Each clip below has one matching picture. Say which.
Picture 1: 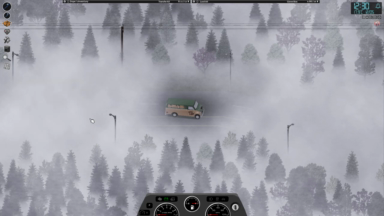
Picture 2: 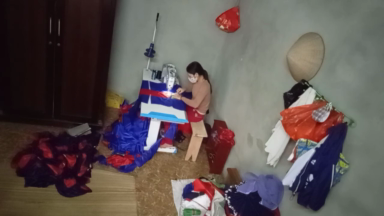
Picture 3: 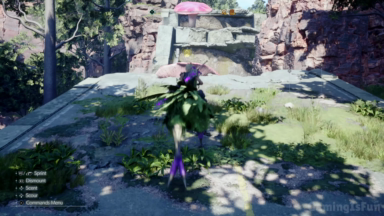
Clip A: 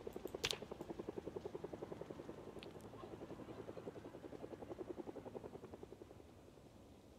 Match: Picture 1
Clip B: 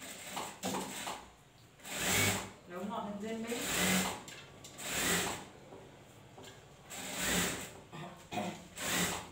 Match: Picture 2